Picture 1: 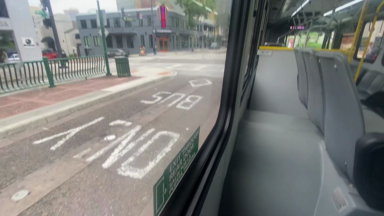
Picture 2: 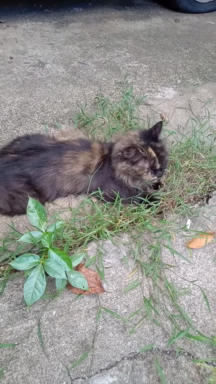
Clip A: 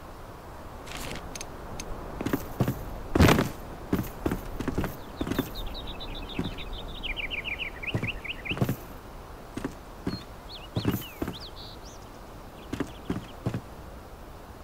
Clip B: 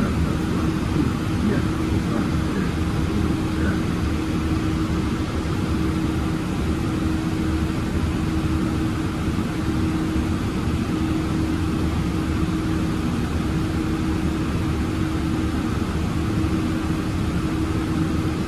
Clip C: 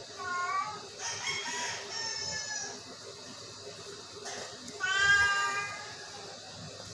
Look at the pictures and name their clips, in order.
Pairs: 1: B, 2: C